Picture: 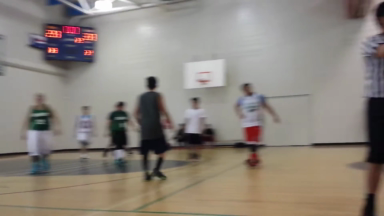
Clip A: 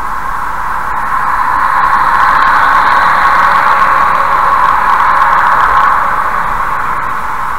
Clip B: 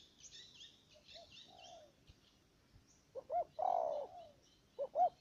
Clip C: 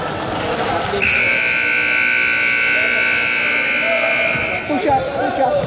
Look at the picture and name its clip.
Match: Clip C